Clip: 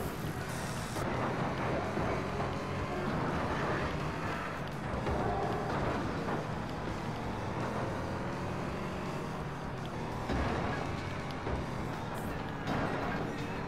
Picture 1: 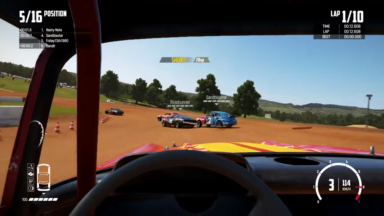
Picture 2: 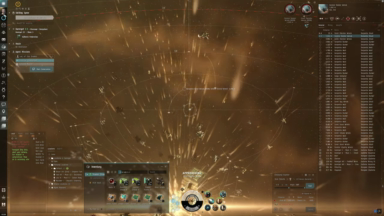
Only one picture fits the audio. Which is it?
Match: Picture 1